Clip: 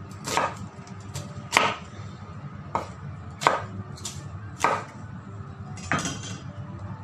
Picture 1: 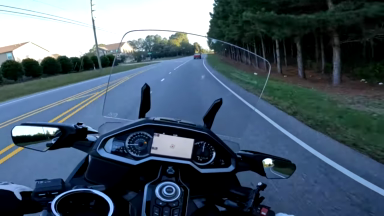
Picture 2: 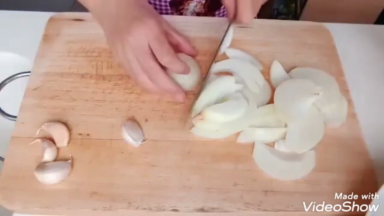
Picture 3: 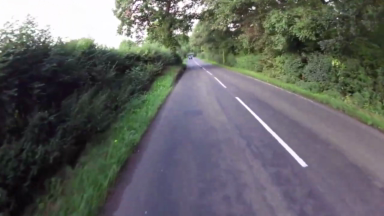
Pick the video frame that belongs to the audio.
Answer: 2